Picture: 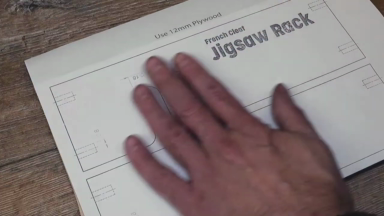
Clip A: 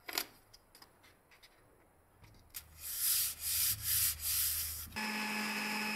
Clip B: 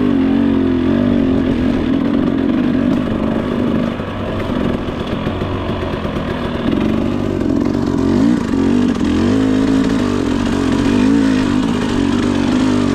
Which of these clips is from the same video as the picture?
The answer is A